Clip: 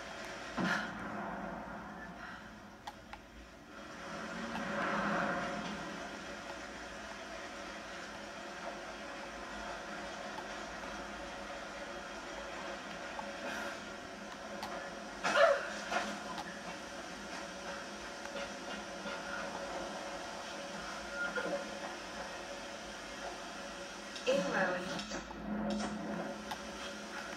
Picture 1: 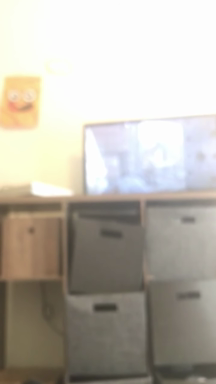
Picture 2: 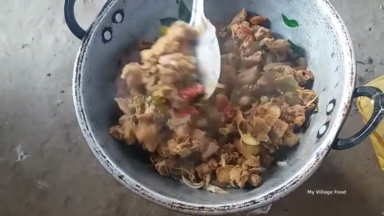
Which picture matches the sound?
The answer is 1